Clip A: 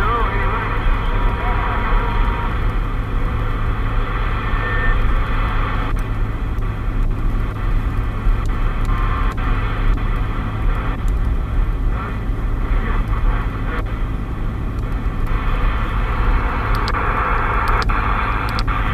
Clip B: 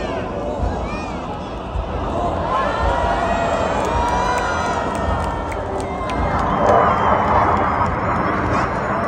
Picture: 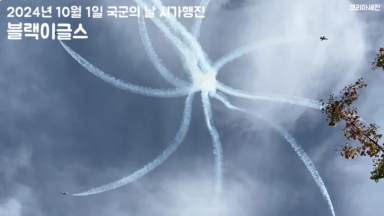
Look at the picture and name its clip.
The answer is B